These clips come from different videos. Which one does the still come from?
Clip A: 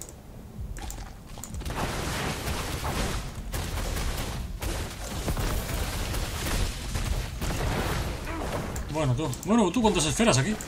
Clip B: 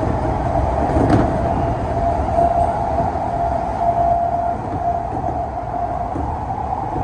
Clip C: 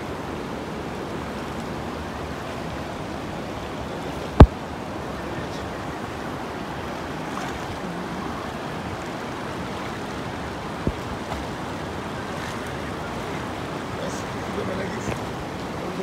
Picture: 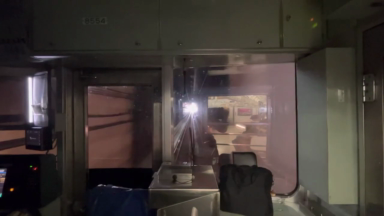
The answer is B